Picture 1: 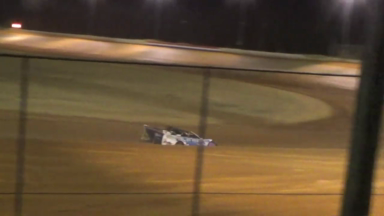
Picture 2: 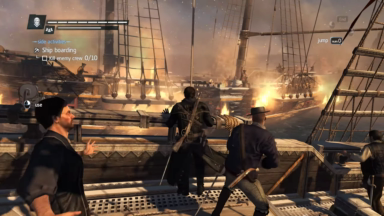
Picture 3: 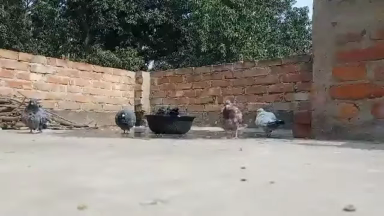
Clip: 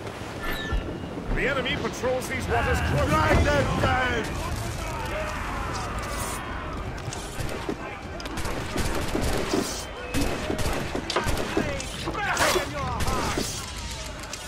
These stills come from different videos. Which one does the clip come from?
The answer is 2